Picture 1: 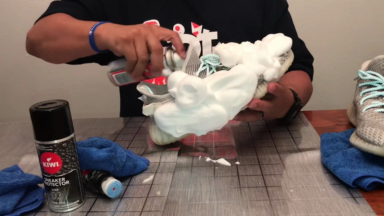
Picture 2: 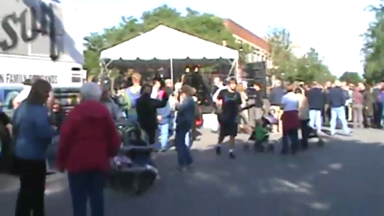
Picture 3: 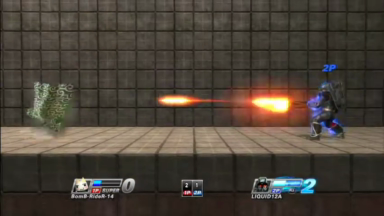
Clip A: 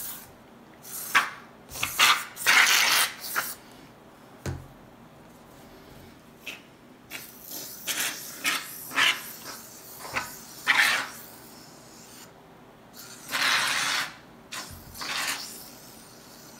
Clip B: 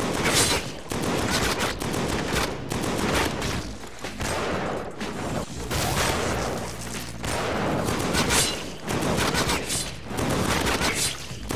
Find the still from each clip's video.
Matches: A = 1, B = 3